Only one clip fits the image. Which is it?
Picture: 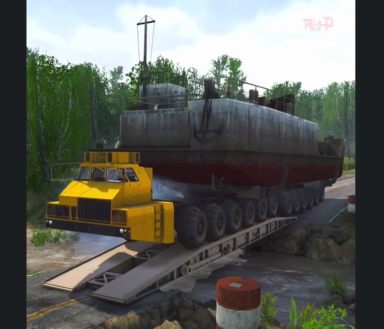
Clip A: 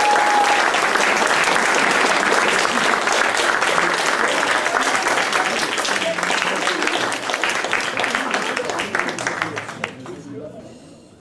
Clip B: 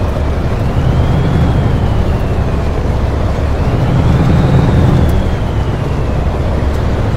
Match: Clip B